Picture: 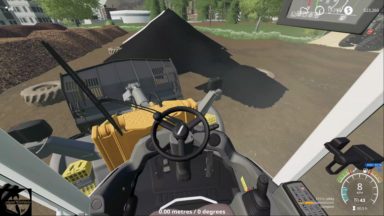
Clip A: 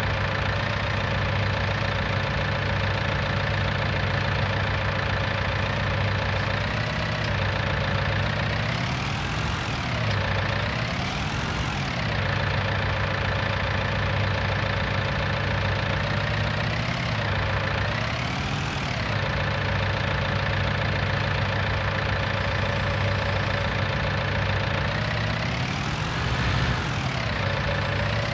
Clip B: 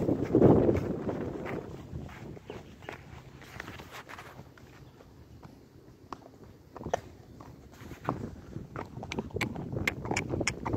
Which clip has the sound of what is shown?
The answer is A